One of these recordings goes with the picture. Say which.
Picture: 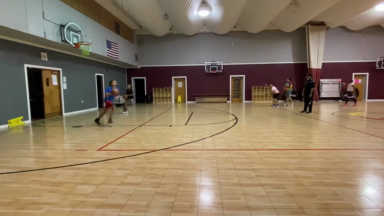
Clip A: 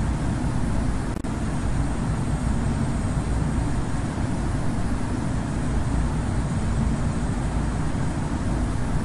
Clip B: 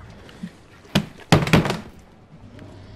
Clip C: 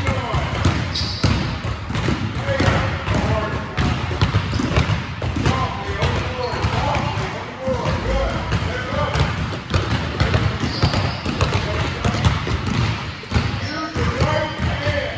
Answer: C